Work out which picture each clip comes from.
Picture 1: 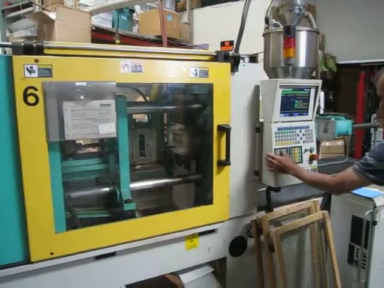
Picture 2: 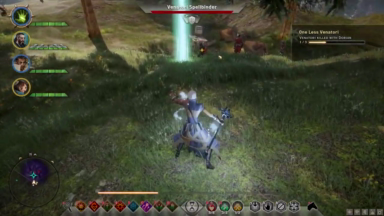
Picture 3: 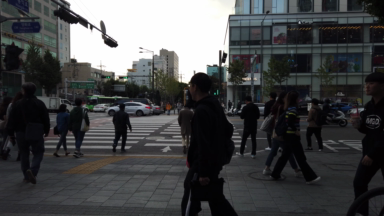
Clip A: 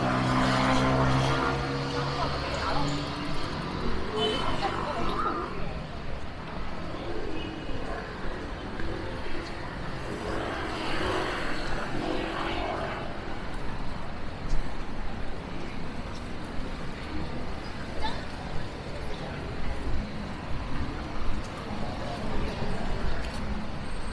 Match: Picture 3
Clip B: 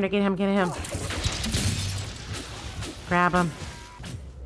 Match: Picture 2